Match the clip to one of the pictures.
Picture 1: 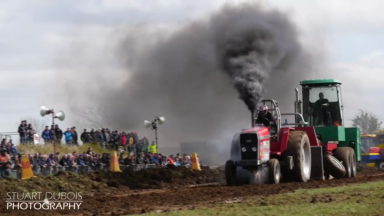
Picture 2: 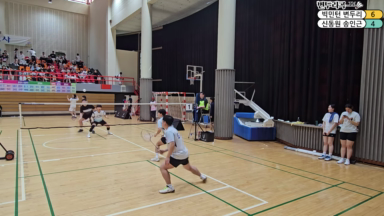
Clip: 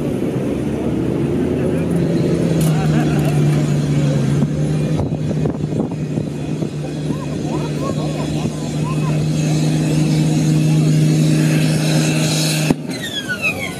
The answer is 1